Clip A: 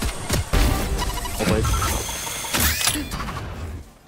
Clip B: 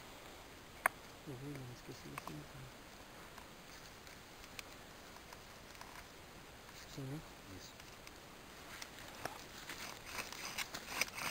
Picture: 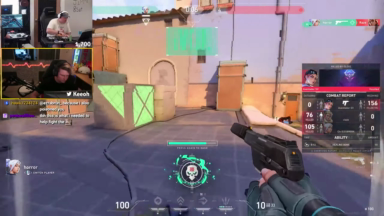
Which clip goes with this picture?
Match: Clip A